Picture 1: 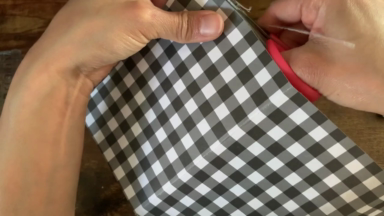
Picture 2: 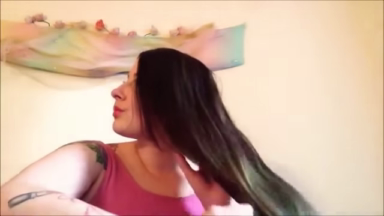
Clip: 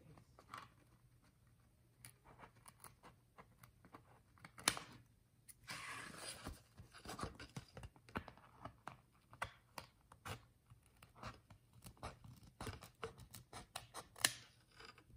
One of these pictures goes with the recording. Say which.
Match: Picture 1